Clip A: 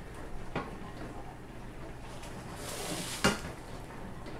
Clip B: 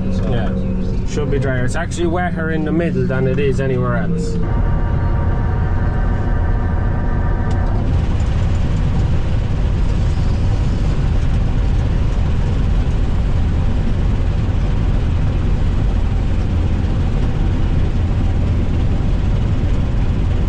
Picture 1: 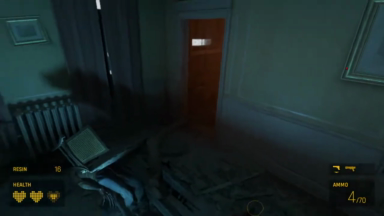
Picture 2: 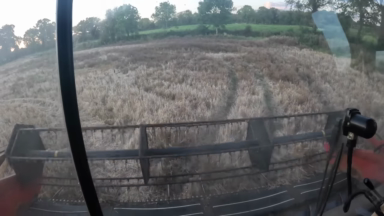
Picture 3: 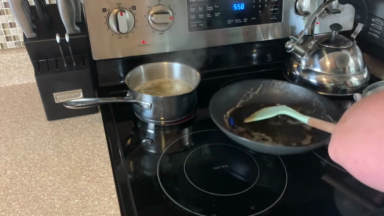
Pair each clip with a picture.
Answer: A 3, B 2